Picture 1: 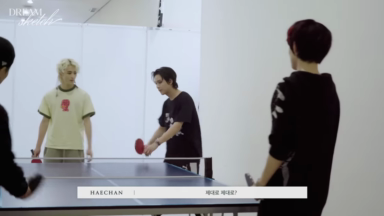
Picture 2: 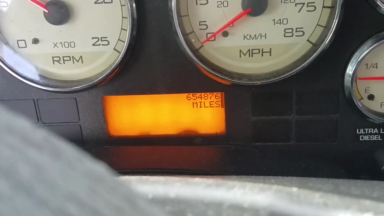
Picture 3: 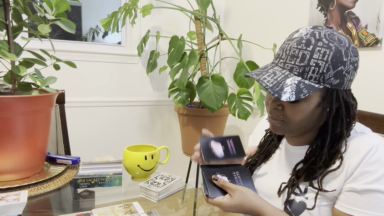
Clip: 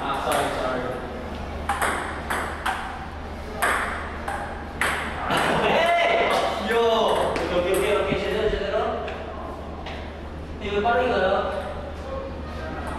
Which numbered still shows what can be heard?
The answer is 1